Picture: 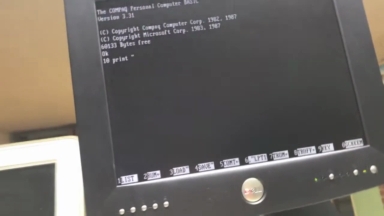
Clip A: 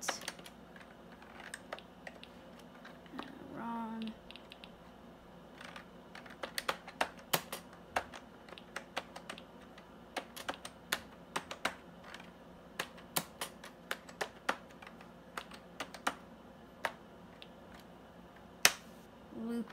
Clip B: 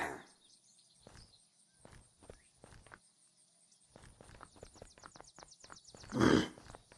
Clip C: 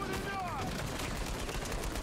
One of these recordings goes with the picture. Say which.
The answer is A